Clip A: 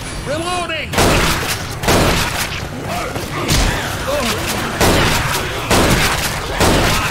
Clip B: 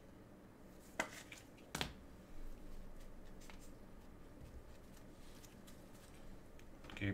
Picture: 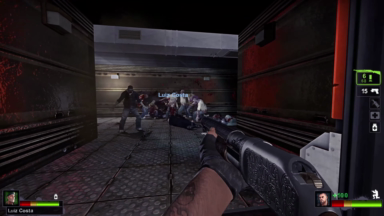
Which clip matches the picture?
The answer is A